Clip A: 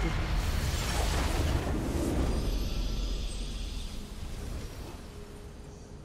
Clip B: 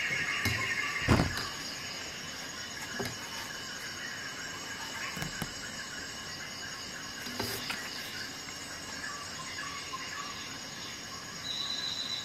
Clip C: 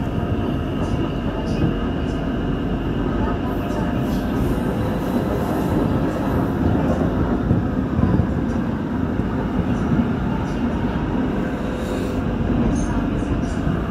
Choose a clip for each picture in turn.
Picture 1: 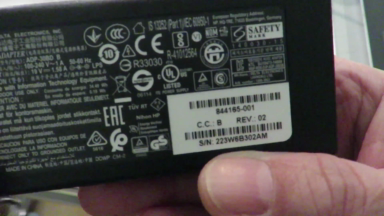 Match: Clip B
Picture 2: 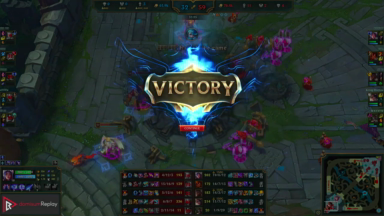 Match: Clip A